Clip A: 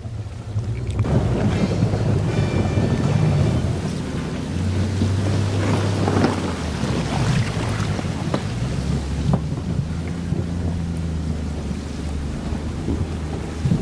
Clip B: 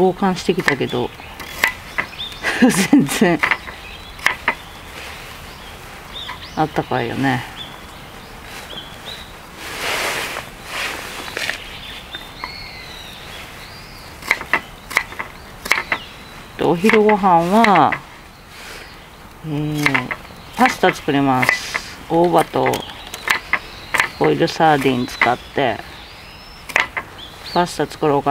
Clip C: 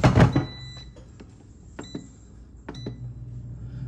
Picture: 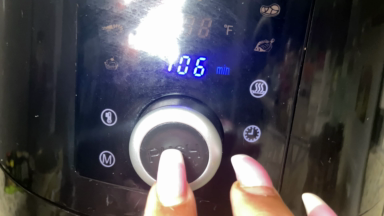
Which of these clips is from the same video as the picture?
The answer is C